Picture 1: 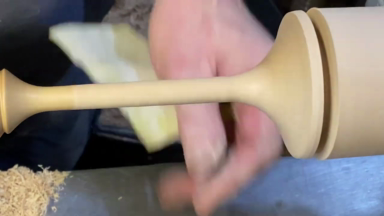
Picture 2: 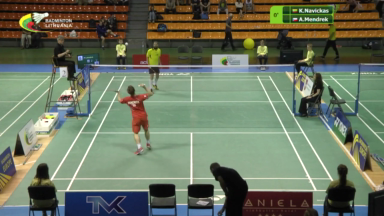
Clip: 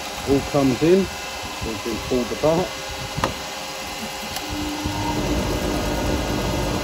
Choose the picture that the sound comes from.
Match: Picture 1